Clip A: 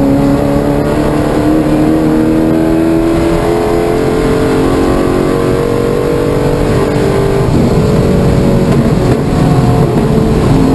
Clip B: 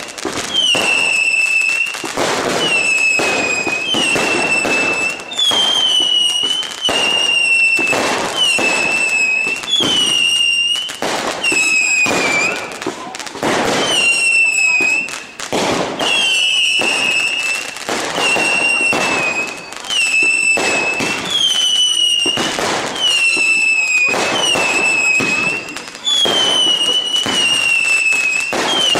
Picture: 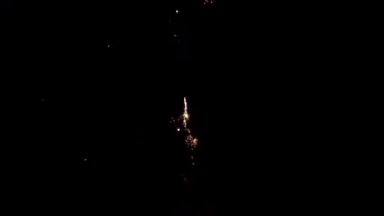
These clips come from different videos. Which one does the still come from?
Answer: B